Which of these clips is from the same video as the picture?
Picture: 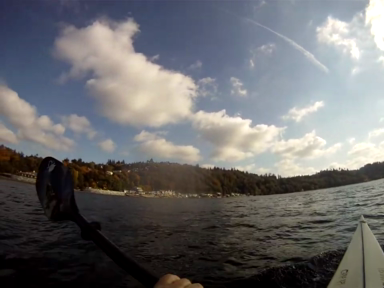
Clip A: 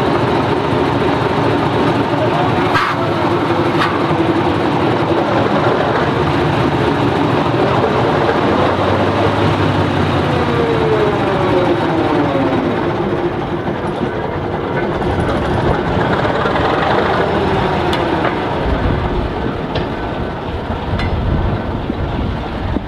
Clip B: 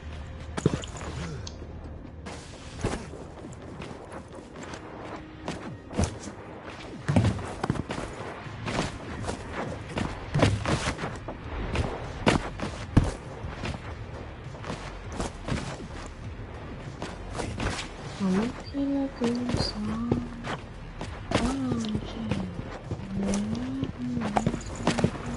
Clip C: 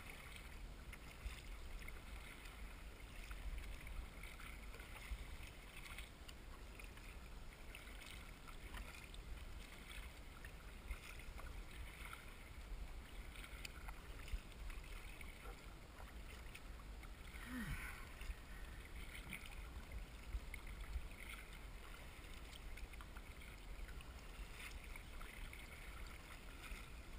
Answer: C